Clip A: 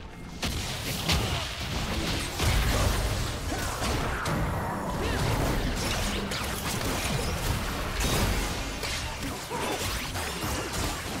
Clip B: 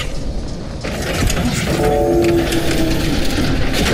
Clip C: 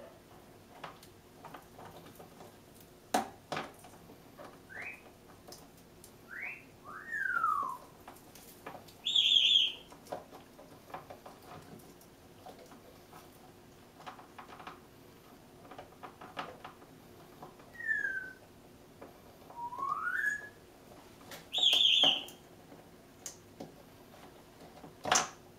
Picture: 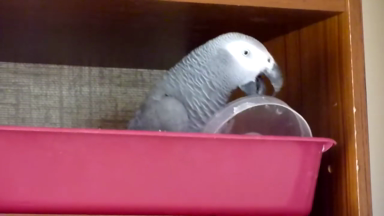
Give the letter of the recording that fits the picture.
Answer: C